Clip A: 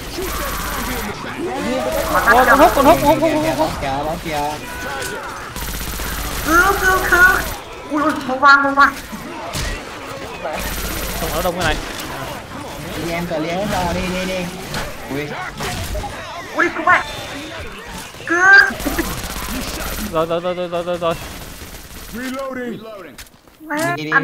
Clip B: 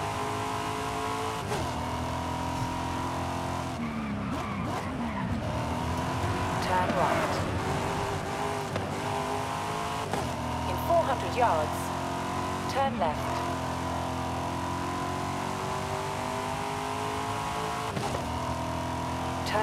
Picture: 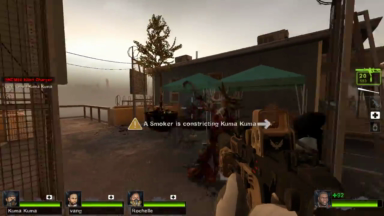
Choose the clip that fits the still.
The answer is A